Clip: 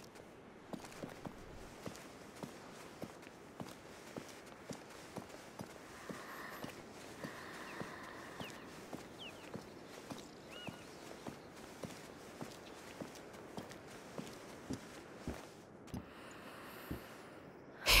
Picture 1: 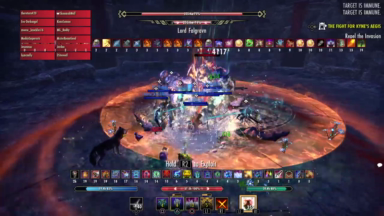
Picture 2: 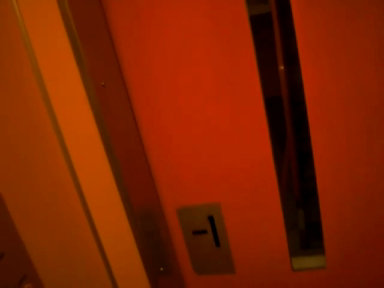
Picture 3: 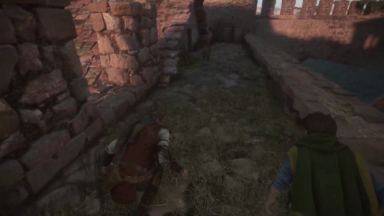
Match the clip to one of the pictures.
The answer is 3